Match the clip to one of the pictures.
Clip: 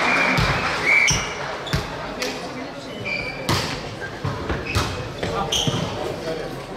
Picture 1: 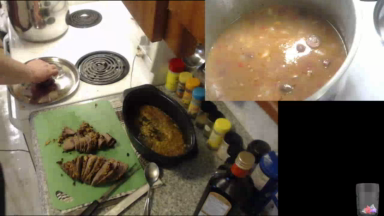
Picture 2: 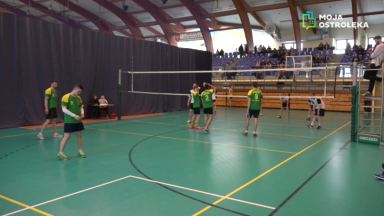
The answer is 2